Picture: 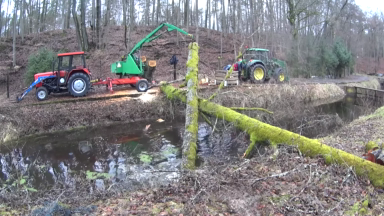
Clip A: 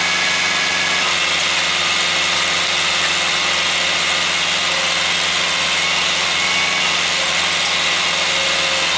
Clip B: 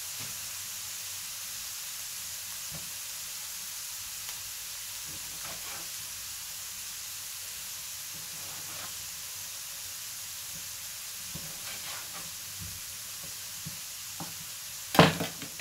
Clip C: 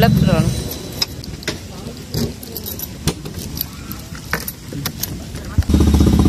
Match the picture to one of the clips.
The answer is A